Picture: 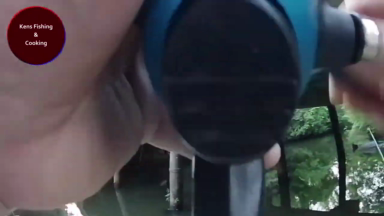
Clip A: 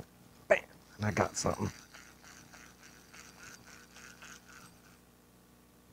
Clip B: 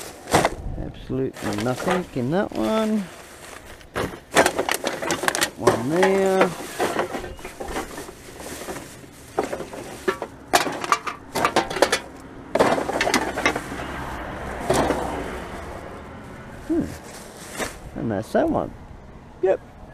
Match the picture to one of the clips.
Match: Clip A